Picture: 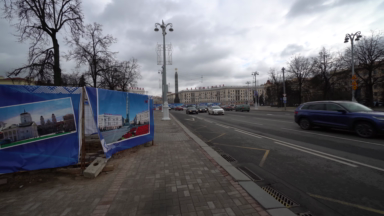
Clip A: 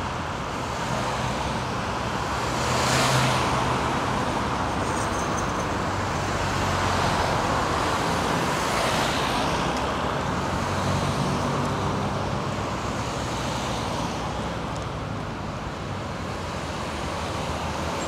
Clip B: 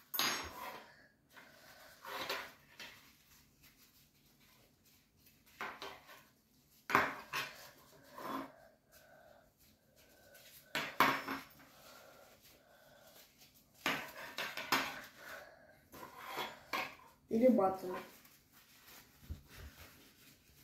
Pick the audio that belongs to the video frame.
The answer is A